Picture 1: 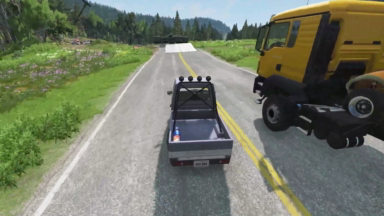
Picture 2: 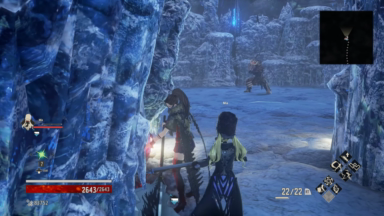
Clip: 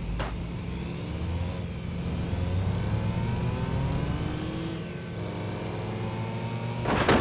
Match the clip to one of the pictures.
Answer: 1